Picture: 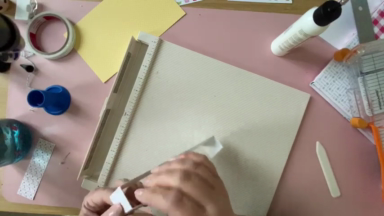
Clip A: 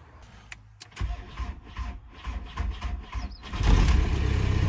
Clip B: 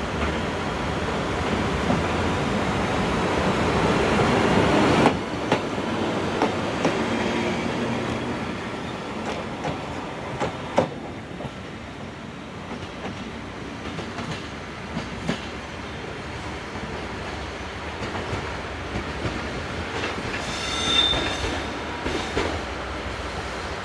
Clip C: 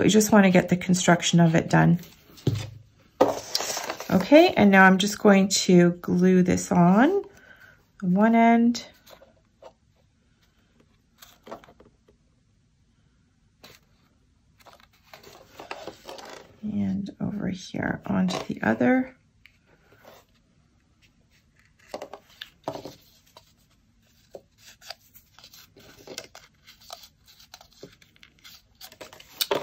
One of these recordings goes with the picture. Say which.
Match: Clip C